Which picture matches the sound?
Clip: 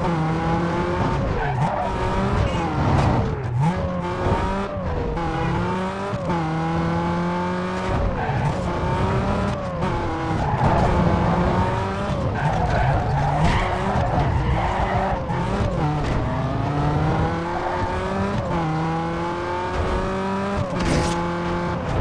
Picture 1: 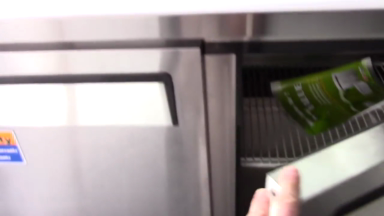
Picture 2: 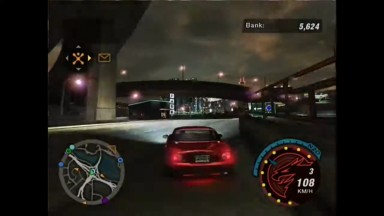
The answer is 2